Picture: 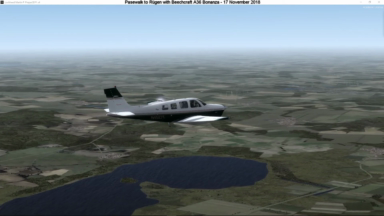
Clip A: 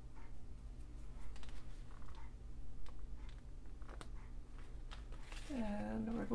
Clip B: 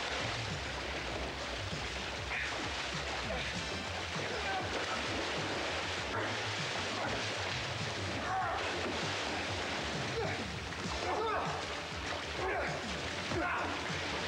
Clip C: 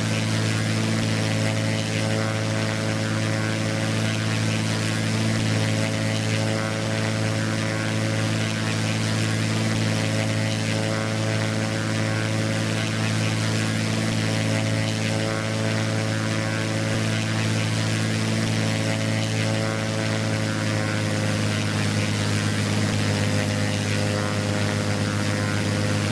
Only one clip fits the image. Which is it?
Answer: C